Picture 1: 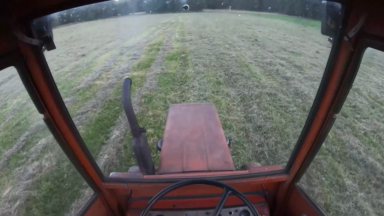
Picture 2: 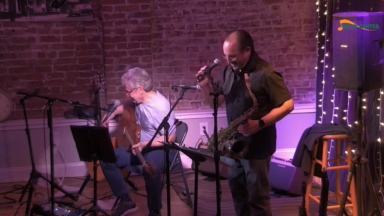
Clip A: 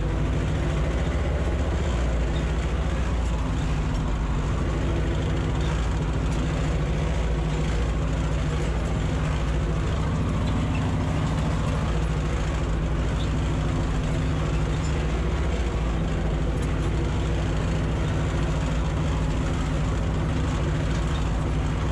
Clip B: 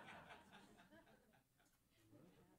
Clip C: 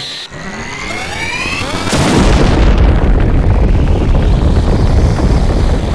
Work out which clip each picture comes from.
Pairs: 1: A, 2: B